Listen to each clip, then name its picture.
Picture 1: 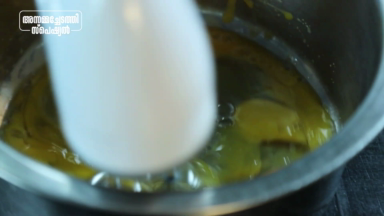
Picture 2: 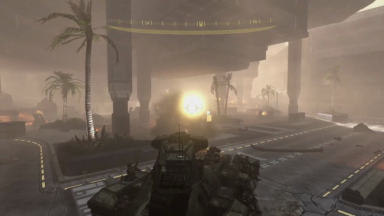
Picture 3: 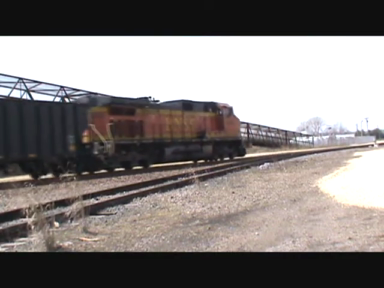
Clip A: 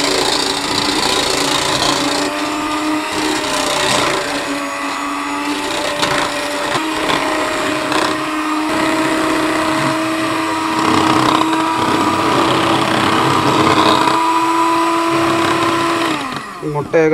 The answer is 1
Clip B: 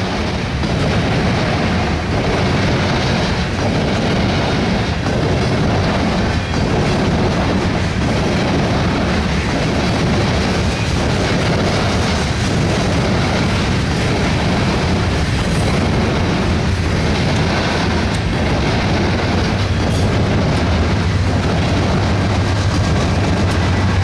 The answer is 3